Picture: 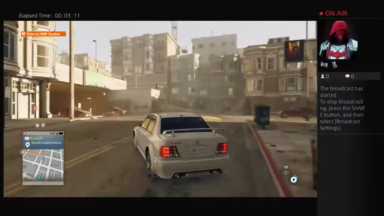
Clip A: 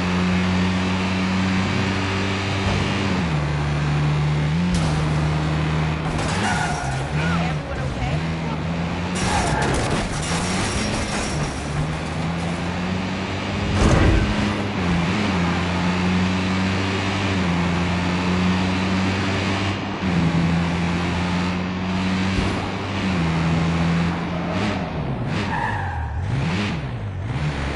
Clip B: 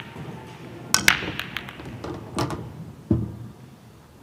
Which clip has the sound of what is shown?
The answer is A